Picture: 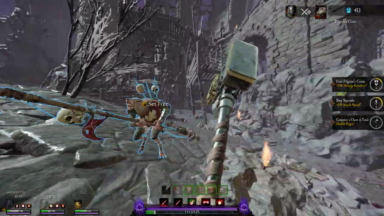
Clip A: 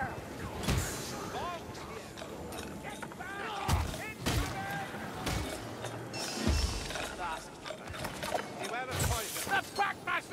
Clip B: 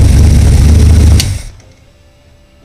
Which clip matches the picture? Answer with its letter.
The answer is A